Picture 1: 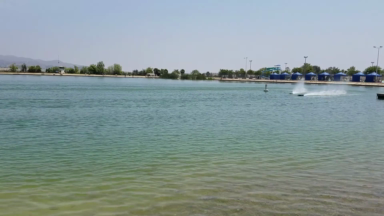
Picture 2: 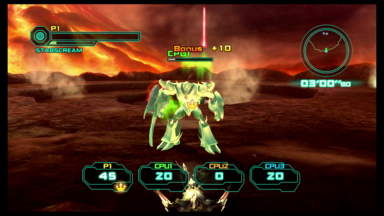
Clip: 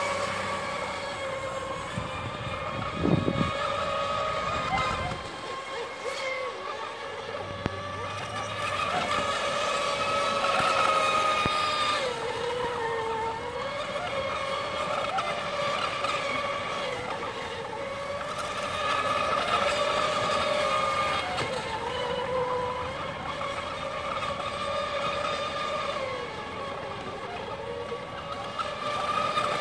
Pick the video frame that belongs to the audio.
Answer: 1